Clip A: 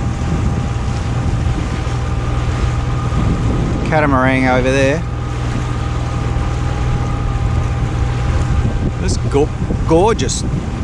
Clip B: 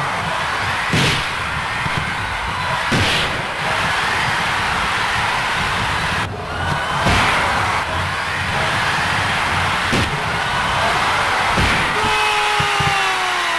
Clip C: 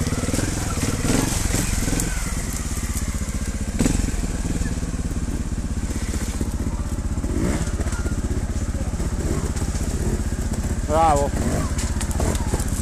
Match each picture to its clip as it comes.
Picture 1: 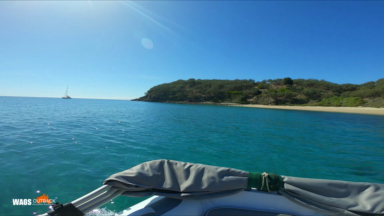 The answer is A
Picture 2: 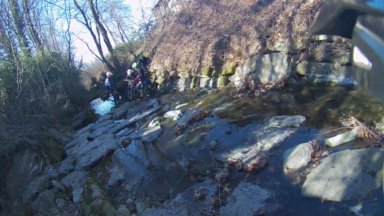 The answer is C